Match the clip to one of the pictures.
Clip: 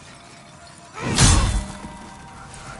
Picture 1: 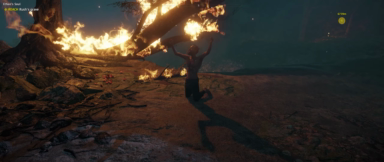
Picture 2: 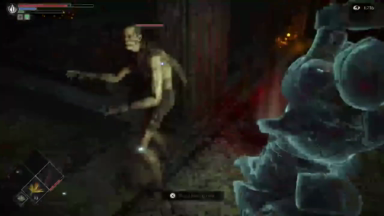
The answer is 2